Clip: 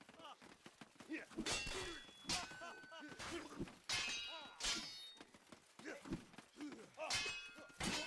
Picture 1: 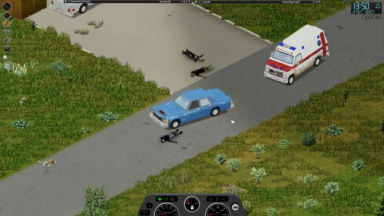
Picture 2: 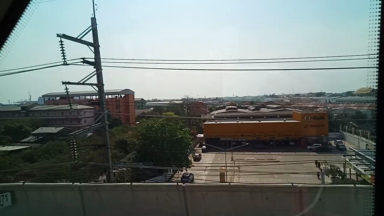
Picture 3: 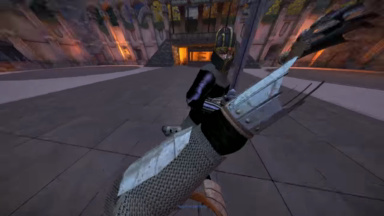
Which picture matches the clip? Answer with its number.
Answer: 3